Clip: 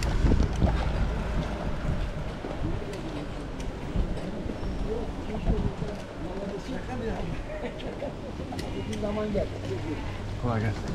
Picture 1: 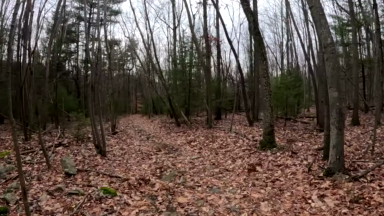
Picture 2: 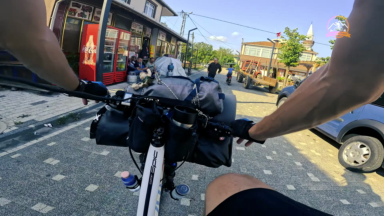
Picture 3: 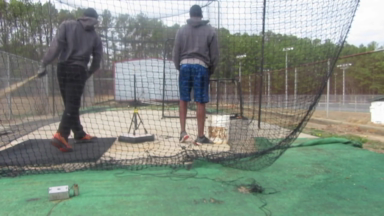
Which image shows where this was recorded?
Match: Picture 2